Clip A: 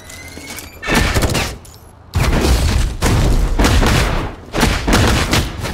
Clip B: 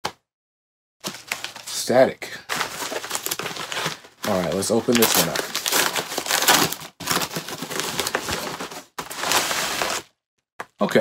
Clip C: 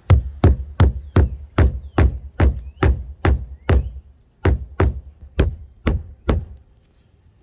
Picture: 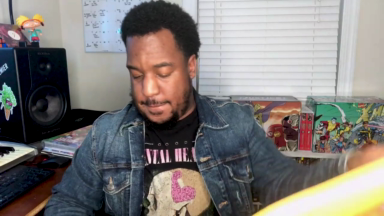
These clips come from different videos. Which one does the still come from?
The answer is B